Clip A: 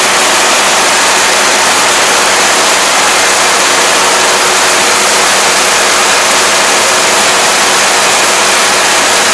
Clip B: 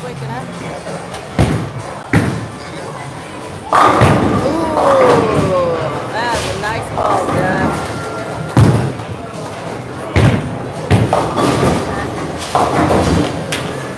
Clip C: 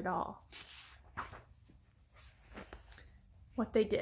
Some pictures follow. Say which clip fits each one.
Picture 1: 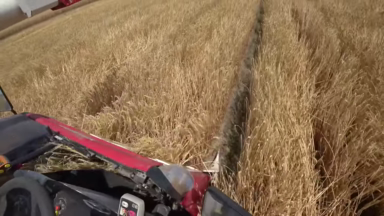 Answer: A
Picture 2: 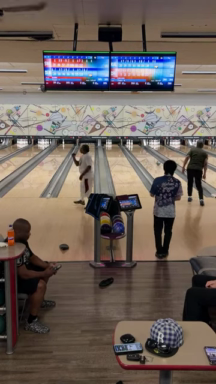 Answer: B